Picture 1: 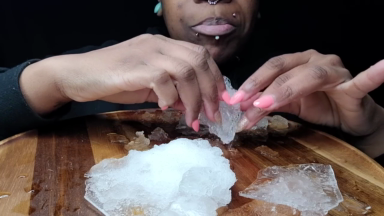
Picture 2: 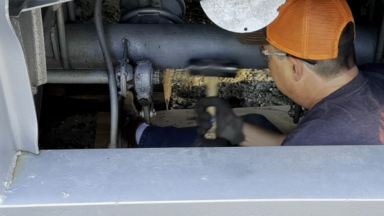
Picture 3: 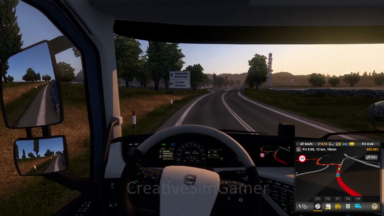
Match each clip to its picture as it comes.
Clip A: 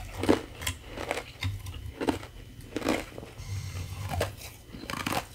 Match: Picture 1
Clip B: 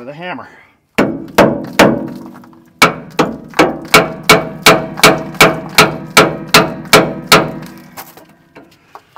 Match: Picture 2